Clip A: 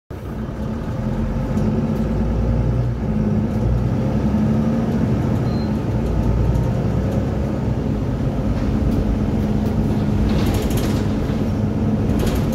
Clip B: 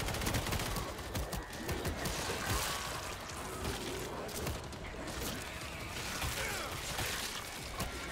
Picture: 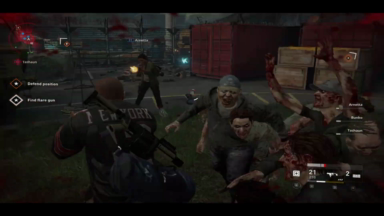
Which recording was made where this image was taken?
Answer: B